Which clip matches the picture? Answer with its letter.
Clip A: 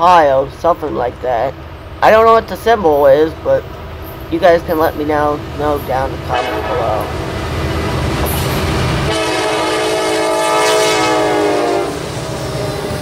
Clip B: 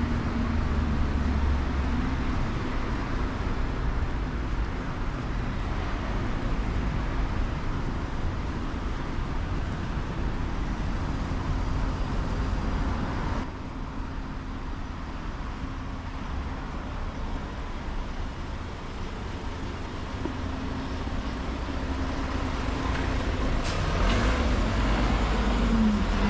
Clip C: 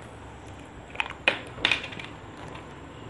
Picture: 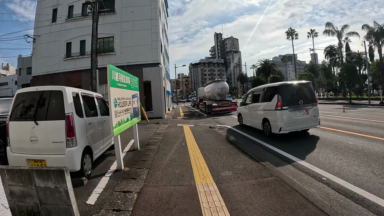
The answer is B